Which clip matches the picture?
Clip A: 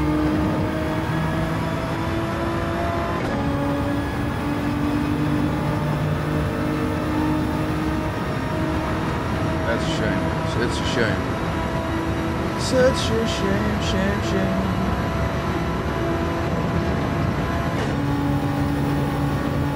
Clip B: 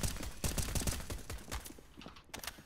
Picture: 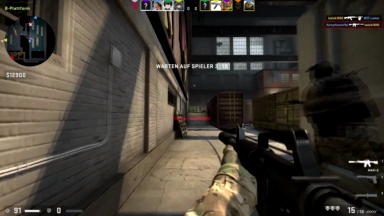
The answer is B